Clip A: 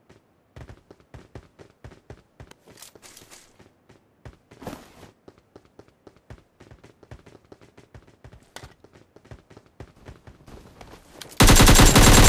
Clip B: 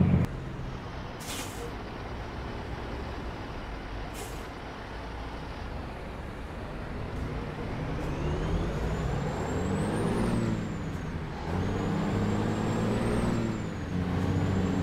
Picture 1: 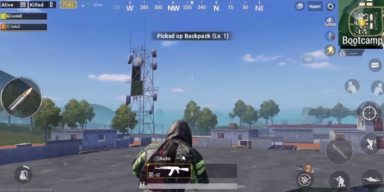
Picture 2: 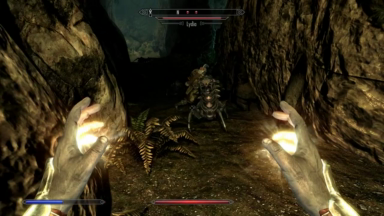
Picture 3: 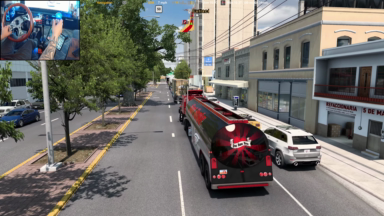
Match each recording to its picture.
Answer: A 1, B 3